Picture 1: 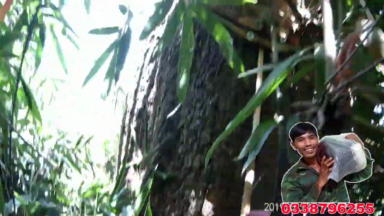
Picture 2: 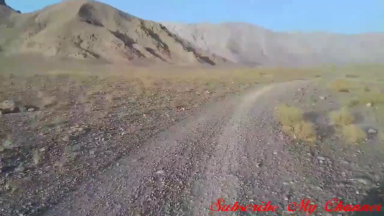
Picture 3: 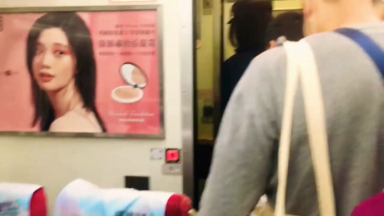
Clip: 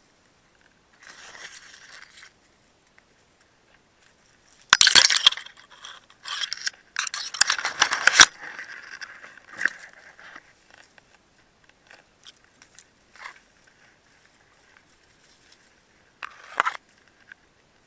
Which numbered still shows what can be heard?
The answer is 1